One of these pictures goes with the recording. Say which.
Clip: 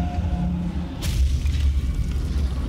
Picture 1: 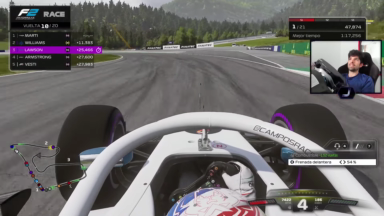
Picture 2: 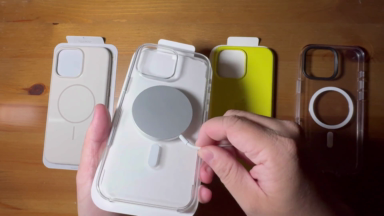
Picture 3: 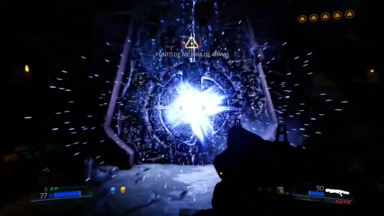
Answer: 3